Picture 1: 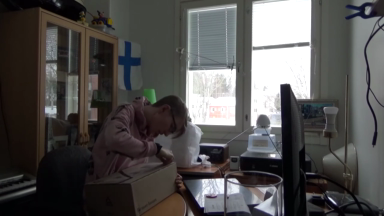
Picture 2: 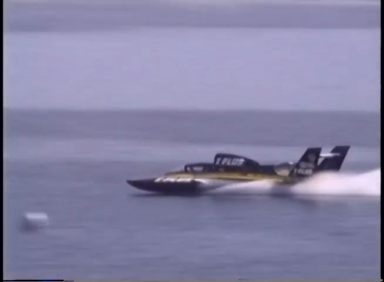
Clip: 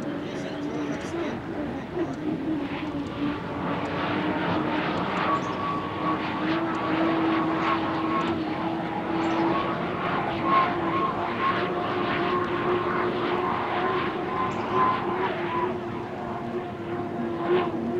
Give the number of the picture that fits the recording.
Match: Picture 2